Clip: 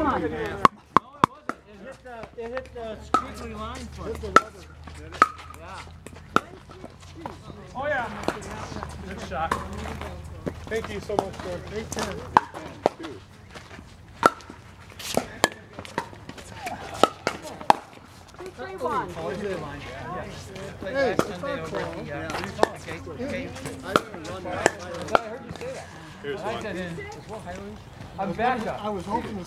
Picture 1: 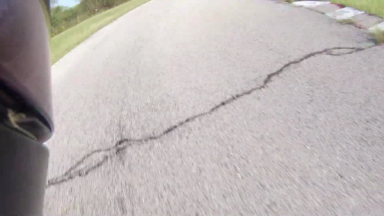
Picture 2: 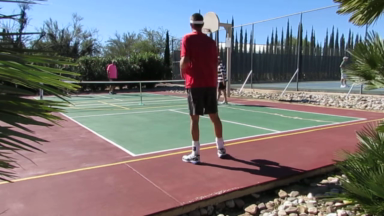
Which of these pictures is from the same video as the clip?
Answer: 2